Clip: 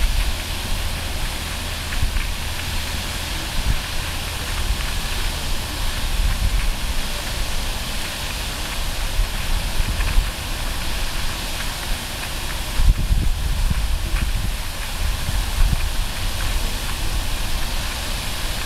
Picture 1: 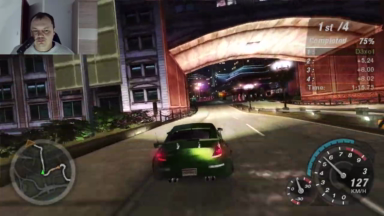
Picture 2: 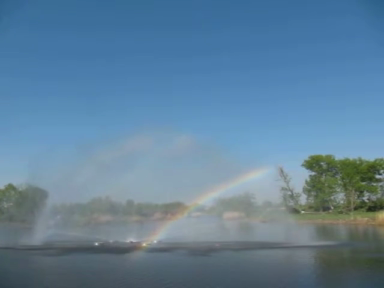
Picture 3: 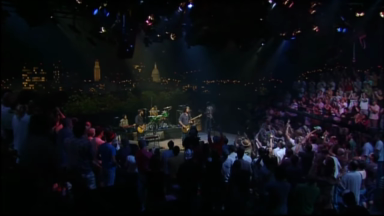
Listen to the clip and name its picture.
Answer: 2